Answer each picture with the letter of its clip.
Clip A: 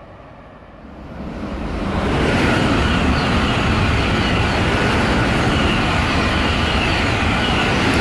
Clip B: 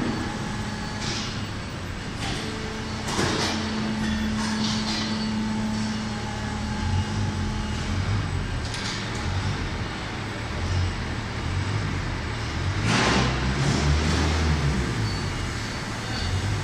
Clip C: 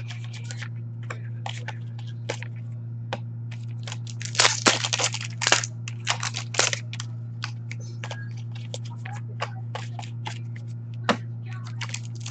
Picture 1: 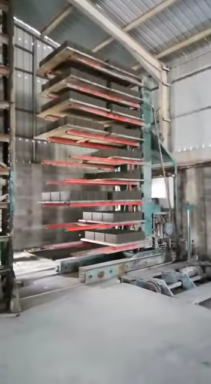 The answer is B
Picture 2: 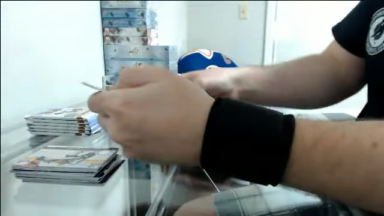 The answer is C